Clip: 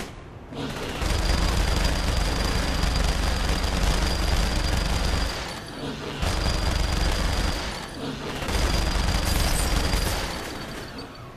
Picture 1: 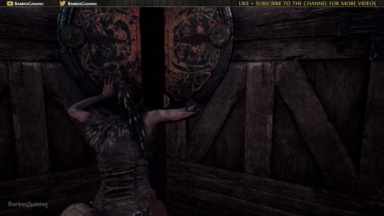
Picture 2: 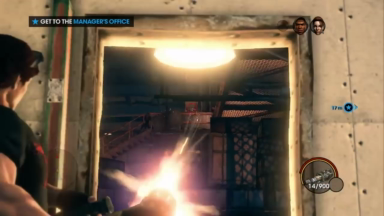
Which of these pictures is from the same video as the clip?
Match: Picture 2